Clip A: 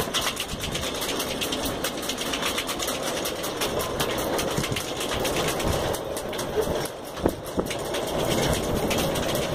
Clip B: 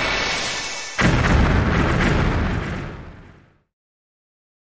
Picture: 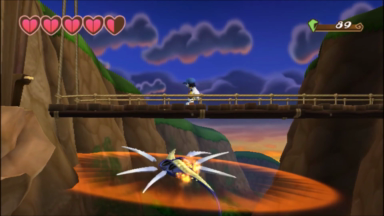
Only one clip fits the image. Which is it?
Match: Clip B